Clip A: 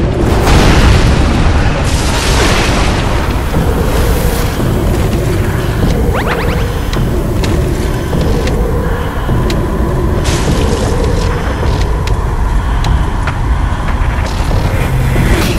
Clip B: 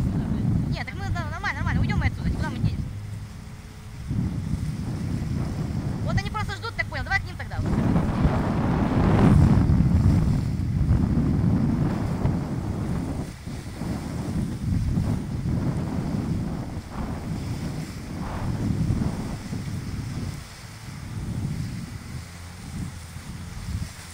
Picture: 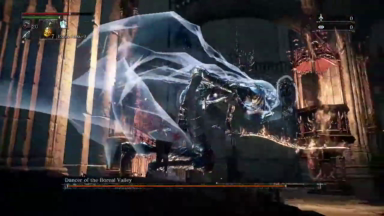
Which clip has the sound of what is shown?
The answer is A